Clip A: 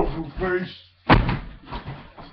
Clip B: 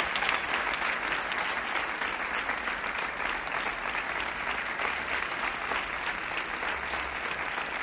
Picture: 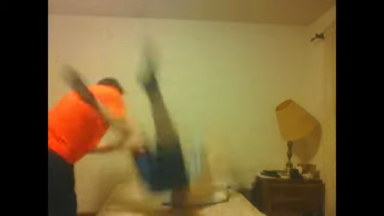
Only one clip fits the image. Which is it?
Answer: A